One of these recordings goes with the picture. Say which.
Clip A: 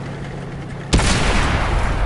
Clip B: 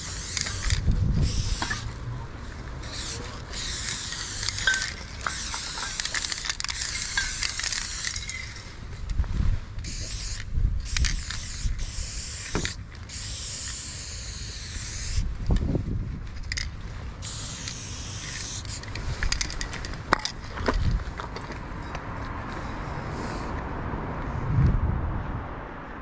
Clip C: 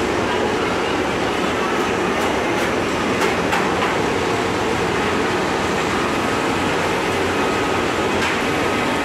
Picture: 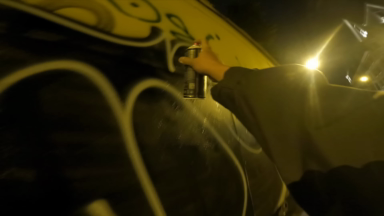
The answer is B